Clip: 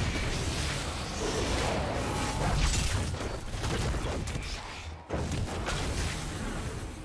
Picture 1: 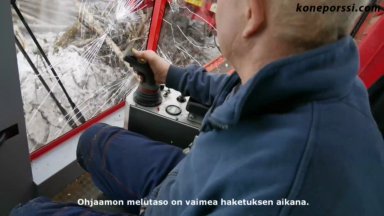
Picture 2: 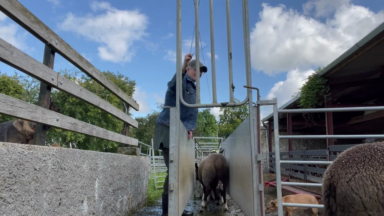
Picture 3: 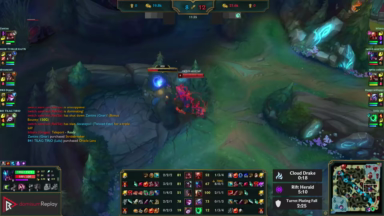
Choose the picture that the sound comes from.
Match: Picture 3